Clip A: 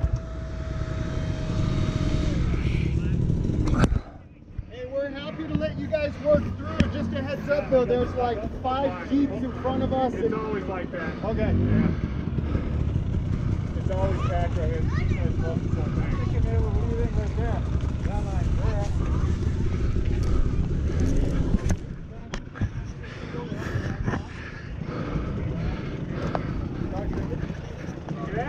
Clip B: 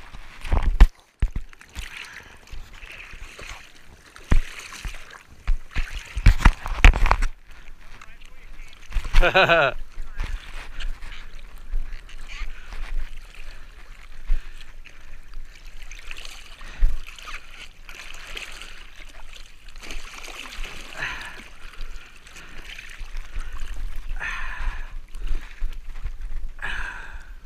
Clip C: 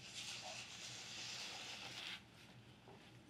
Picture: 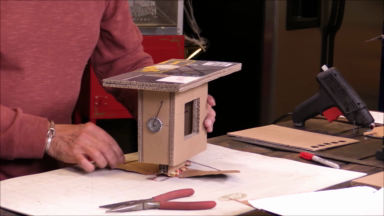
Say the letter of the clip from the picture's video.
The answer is C